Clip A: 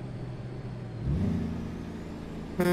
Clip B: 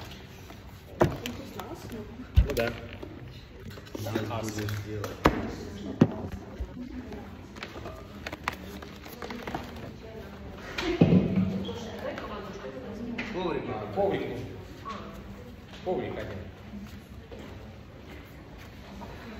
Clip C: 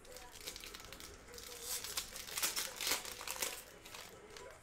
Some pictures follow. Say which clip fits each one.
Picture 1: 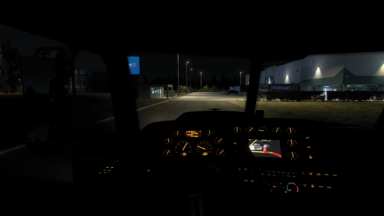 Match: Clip A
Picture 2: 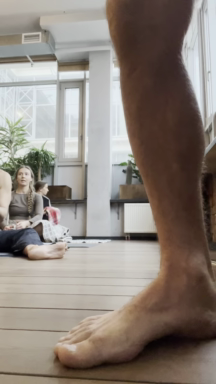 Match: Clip B